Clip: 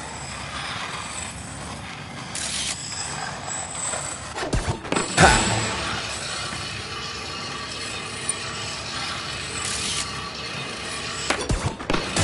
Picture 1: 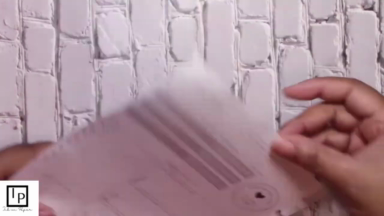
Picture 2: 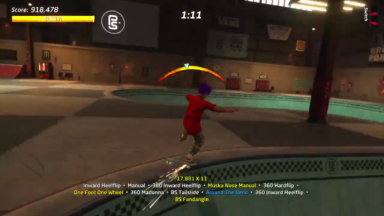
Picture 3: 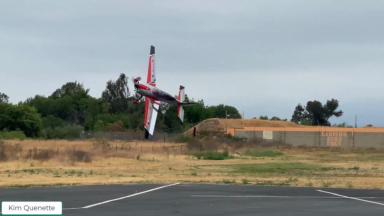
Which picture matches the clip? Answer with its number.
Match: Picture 2